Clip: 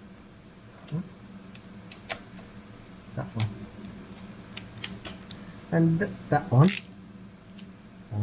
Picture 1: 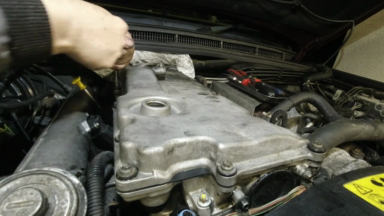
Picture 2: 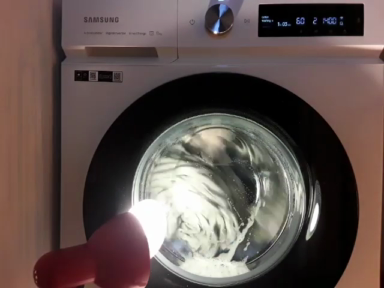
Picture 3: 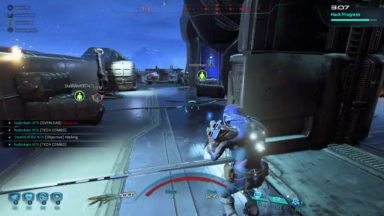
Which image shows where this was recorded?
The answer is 1